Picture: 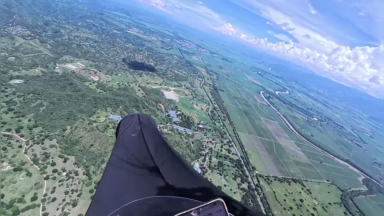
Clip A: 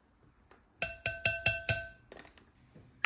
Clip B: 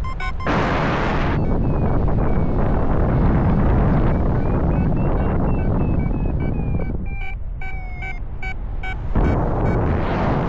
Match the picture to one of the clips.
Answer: B